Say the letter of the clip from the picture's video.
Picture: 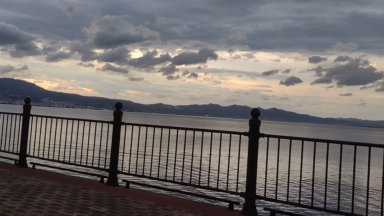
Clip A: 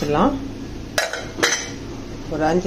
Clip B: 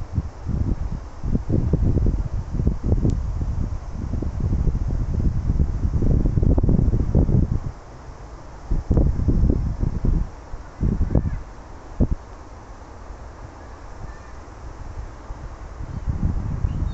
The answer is B